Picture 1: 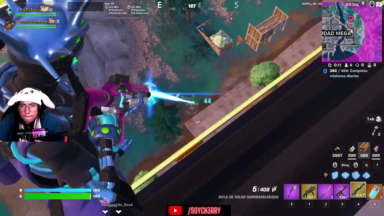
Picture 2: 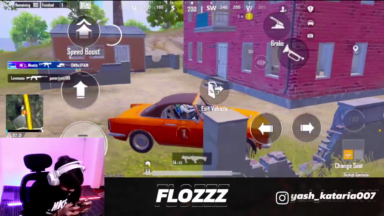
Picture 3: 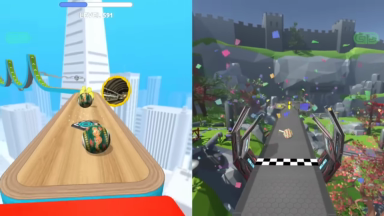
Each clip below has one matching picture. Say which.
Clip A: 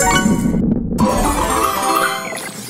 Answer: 3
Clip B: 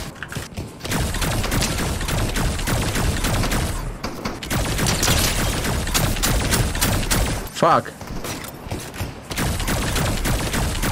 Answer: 1